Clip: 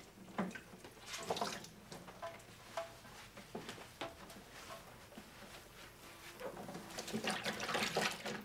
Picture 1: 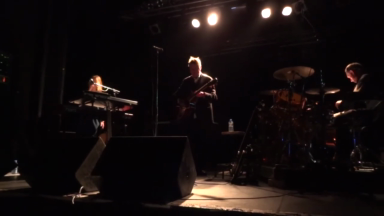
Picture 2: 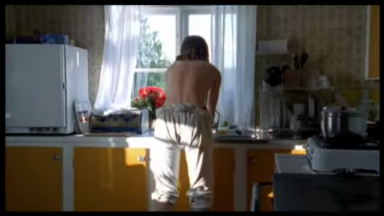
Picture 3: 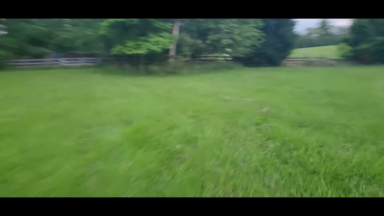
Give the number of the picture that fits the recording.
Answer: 2